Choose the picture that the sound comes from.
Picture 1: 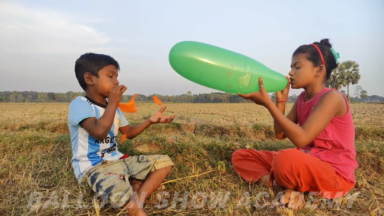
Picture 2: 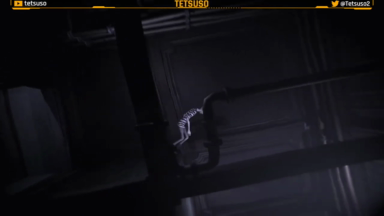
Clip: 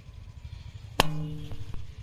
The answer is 1